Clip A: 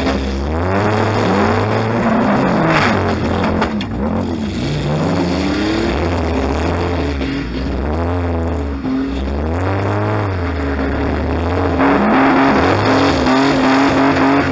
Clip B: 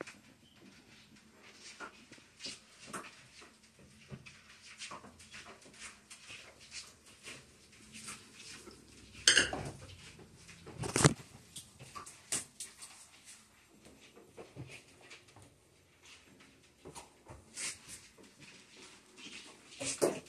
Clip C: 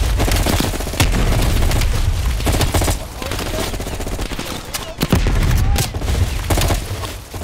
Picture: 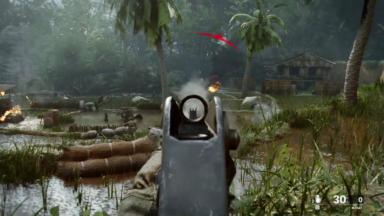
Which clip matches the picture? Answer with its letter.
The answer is C